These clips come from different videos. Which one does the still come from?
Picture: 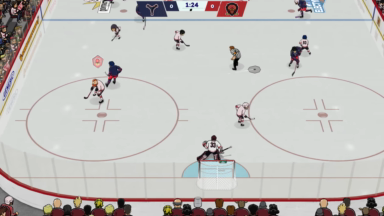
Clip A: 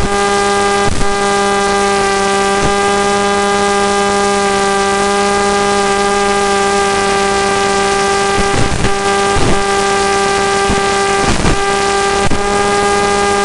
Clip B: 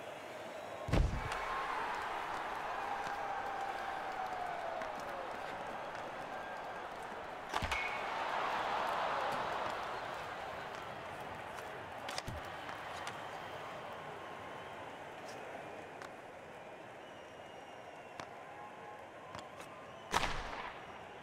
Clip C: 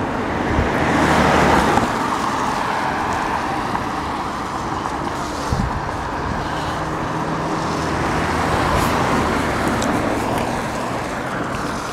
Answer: B